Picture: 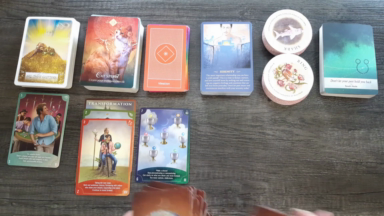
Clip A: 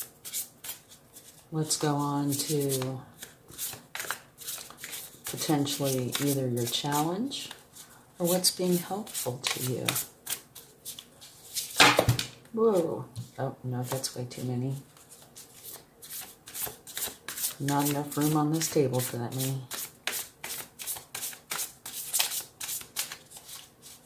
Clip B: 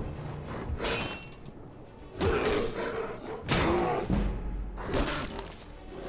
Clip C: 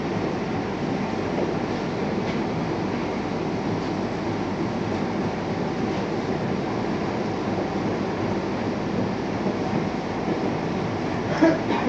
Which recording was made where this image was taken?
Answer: A